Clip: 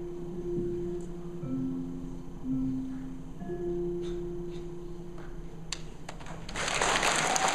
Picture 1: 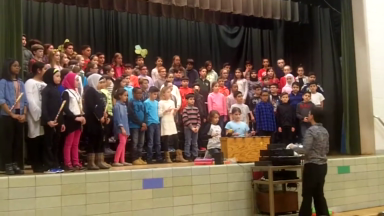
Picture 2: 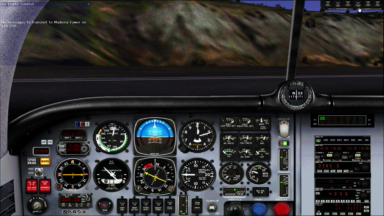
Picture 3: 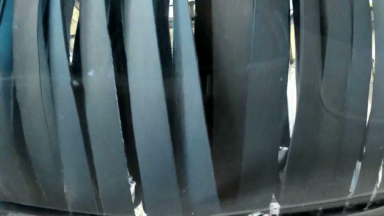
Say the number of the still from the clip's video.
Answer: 1